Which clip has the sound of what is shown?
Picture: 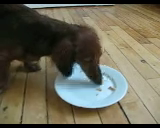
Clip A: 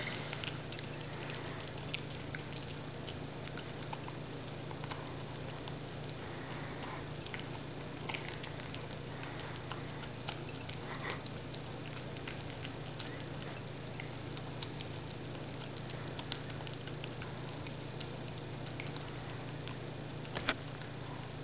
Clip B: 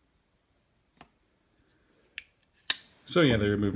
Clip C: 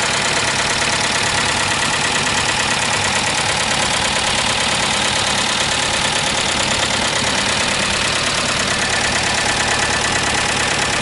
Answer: A